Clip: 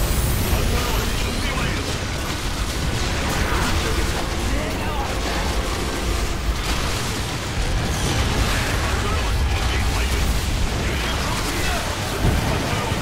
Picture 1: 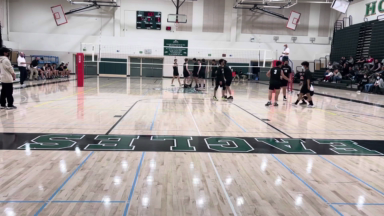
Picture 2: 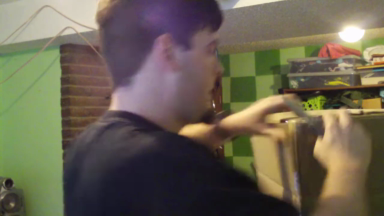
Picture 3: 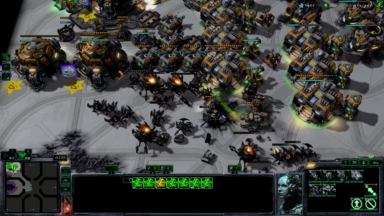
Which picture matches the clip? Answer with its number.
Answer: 3